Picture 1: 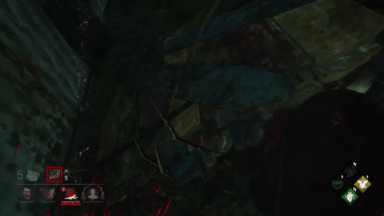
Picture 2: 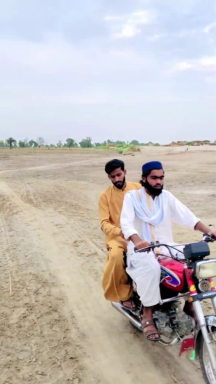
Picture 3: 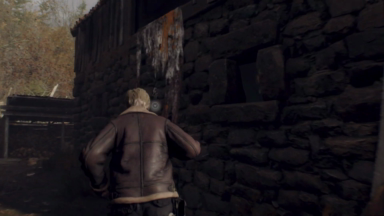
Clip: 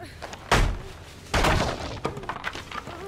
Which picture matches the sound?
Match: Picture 1